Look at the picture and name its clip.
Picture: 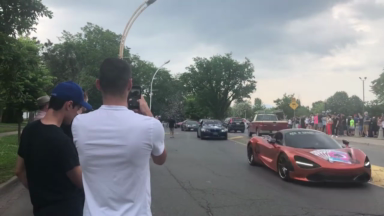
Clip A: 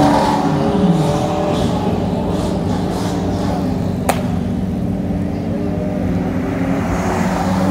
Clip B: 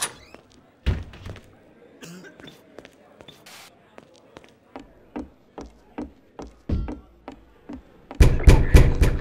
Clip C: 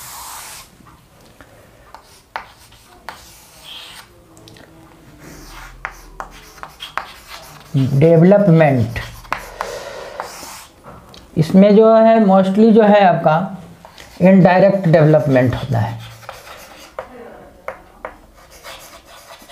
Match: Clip A